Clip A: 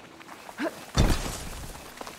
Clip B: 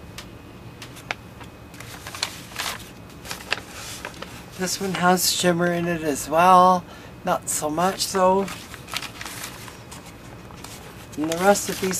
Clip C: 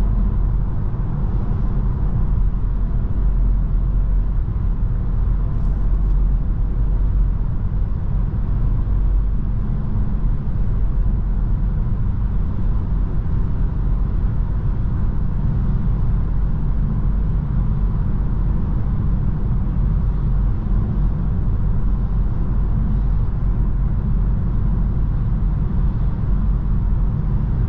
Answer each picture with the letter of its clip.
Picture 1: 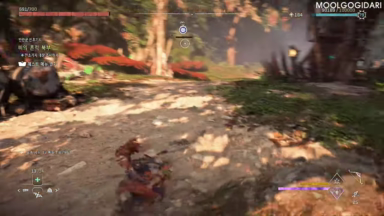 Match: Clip A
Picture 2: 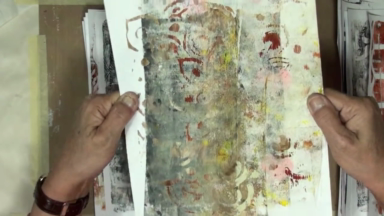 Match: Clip B